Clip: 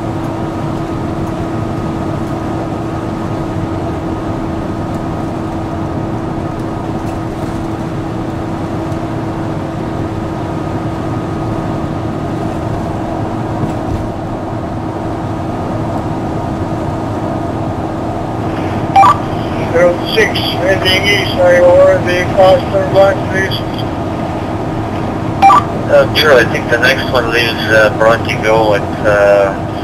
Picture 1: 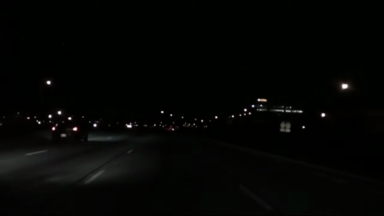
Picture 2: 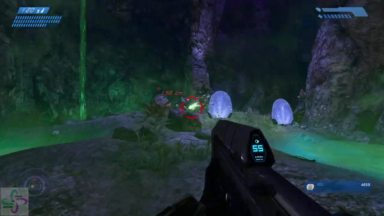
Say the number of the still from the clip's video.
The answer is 1